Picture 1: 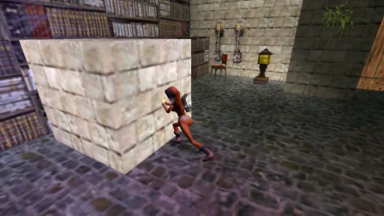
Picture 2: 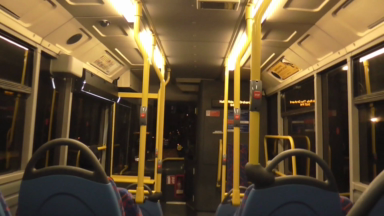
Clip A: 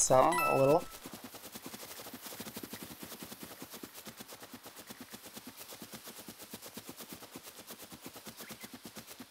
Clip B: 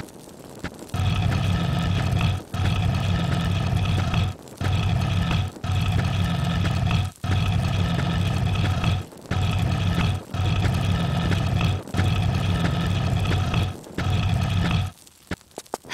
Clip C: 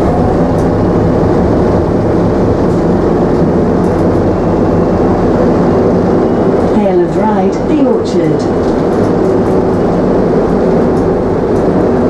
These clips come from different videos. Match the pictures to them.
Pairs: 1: B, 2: C